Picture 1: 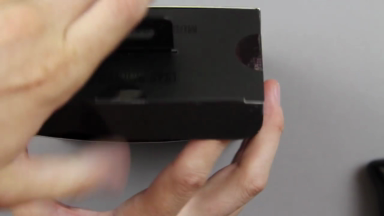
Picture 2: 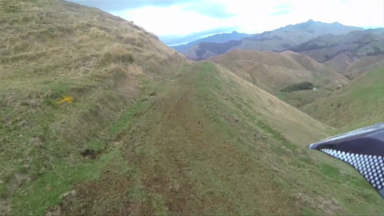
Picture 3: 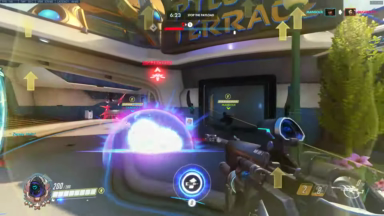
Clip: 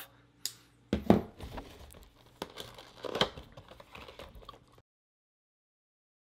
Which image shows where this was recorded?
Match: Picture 1